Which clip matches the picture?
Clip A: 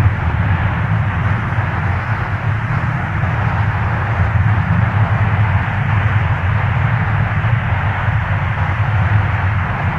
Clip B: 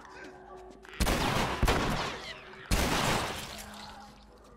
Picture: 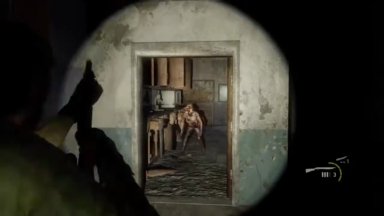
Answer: B